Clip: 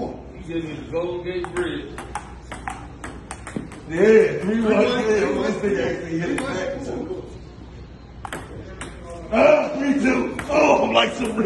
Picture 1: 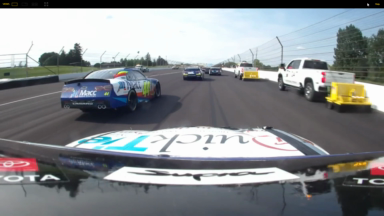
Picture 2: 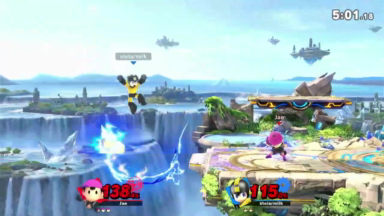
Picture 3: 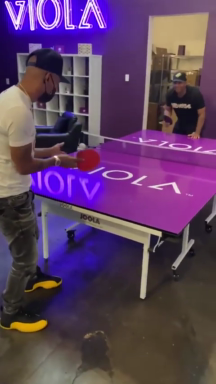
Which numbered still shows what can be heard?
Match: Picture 3